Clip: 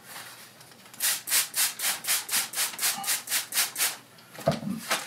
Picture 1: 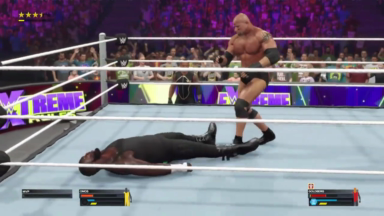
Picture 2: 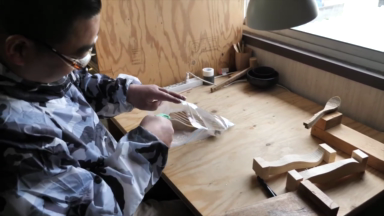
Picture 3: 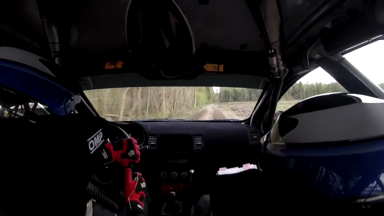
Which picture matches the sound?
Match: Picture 2